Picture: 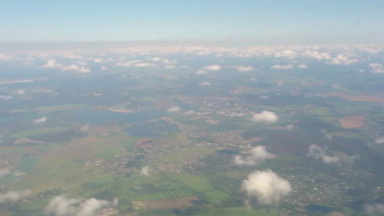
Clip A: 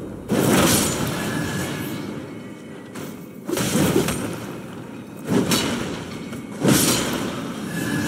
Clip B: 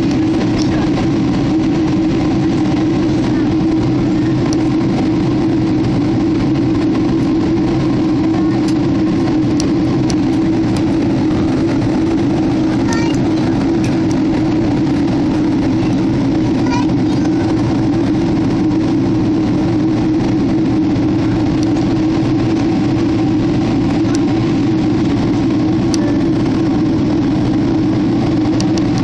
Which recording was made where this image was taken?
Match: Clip B